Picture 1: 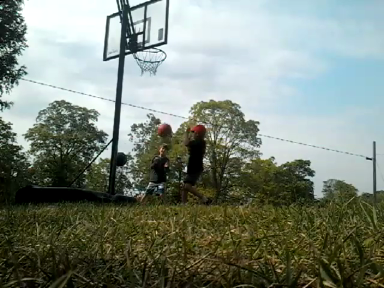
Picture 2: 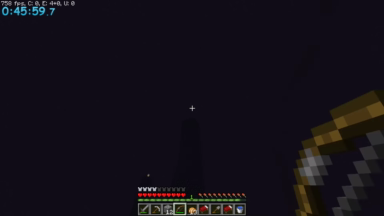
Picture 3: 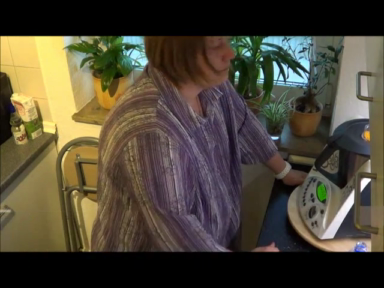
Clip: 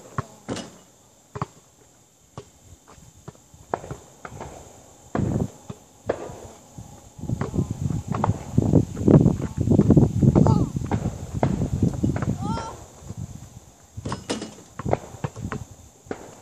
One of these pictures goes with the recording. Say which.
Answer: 1